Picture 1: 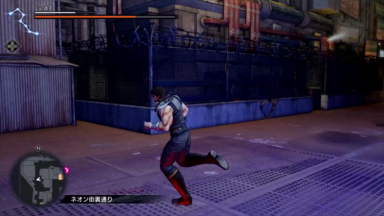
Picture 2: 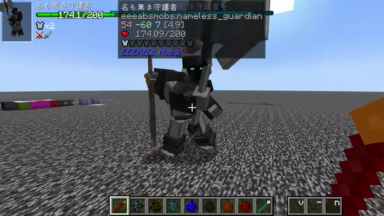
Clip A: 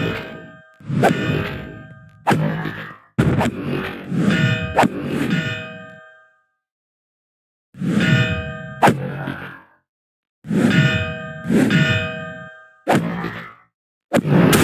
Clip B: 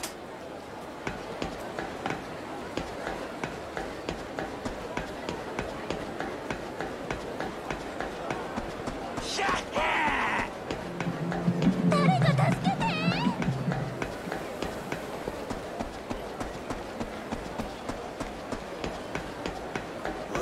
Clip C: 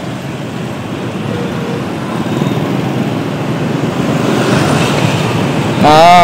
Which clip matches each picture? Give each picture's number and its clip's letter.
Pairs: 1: B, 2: A